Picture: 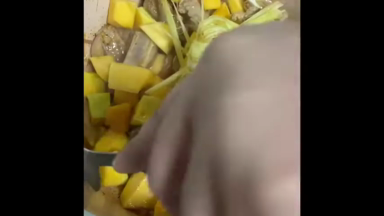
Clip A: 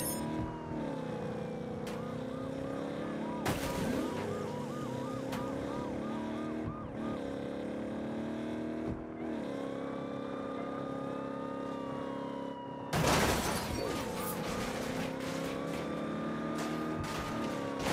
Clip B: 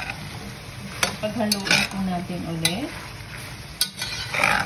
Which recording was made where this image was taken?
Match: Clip B